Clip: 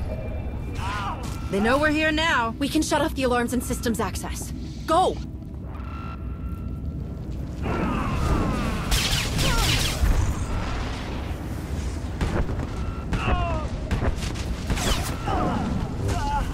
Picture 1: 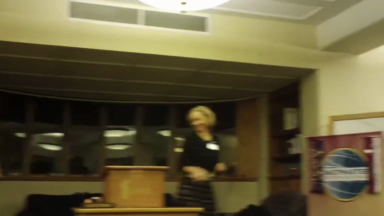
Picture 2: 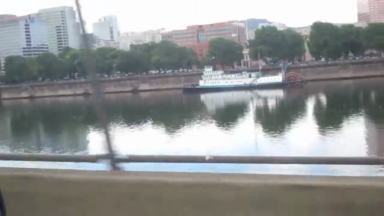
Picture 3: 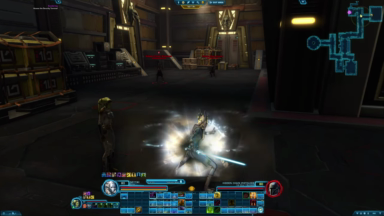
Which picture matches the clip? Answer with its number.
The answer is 3